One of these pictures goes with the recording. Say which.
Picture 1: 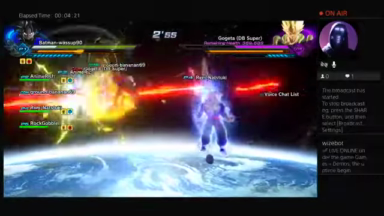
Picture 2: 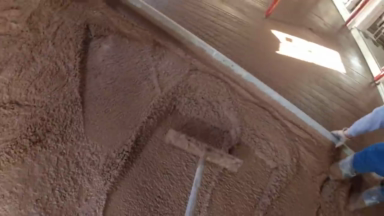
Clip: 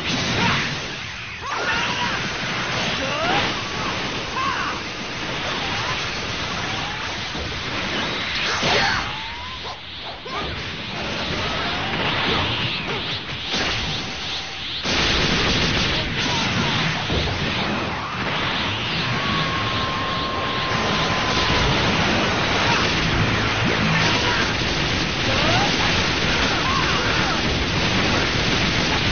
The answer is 1